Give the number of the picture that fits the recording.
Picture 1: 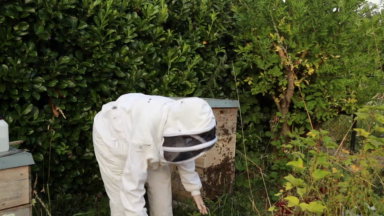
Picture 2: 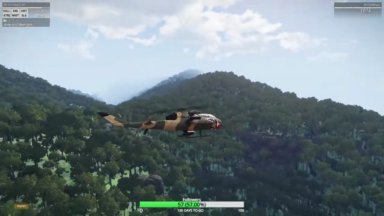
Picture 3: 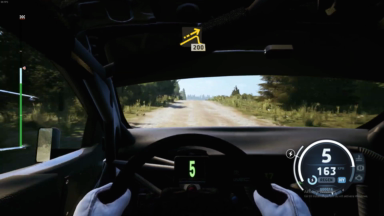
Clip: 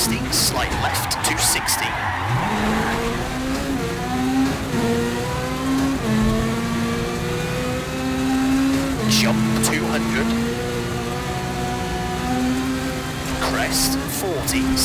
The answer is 3